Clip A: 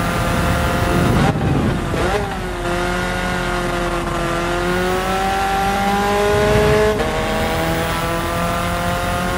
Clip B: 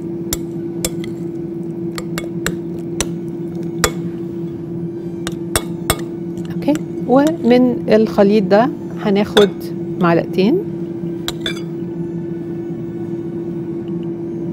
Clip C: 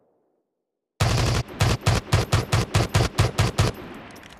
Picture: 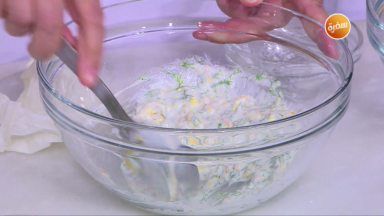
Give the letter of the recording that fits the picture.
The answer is B